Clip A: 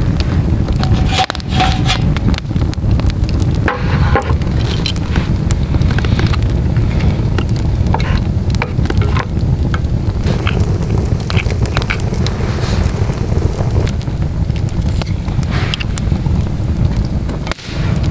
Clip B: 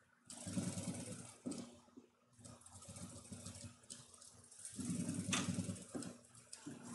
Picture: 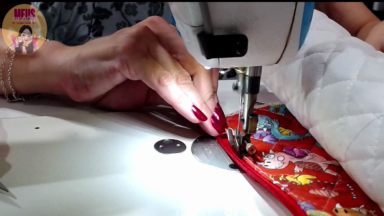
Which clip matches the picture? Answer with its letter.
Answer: B